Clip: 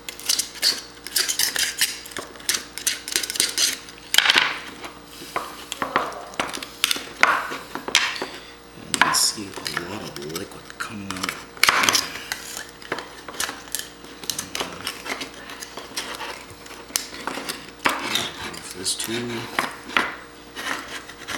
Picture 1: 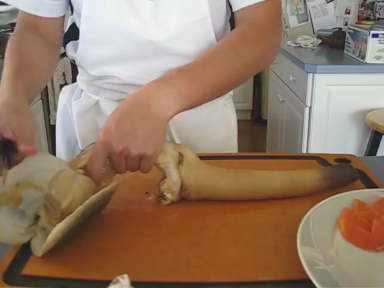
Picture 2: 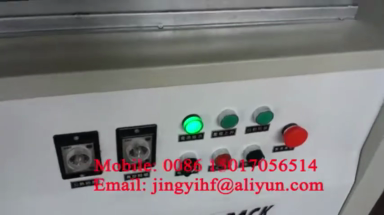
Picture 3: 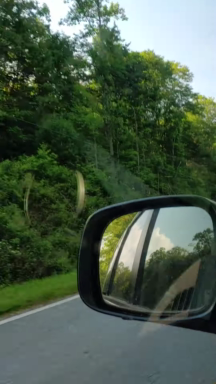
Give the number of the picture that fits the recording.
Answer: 1